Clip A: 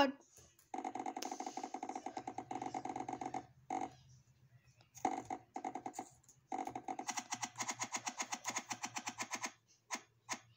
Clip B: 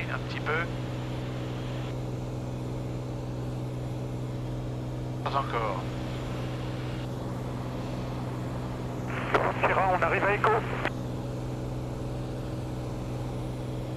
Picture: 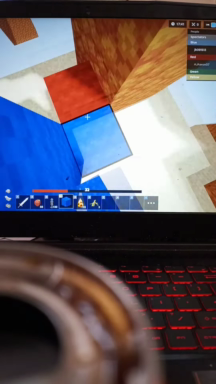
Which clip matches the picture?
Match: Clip A